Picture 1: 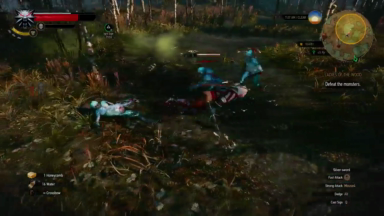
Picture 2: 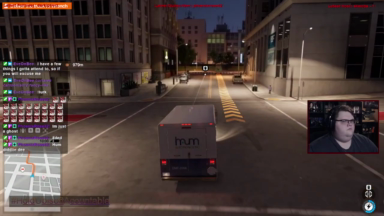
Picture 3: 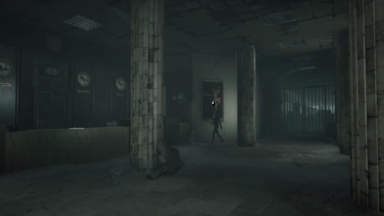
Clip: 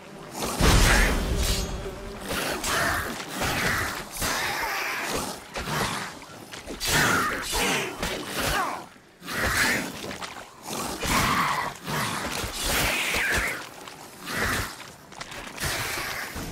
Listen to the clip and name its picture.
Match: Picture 1